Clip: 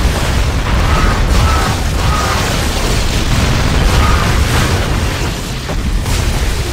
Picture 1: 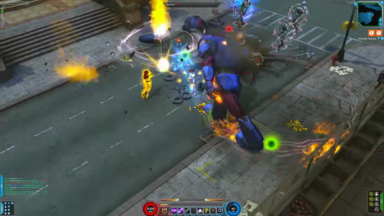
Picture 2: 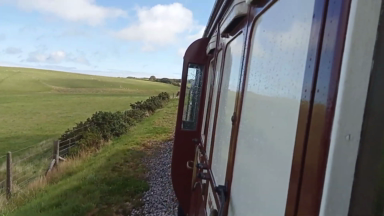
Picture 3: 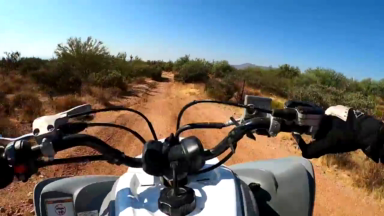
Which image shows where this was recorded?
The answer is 1